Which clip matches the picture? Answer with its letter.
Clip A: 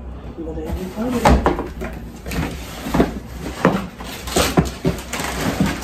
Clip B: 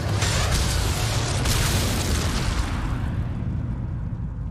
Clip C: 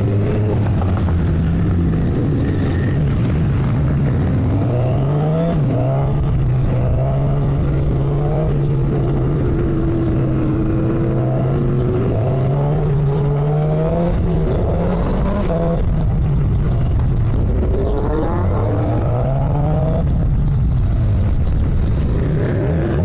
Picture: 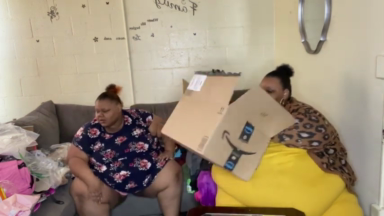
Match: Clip A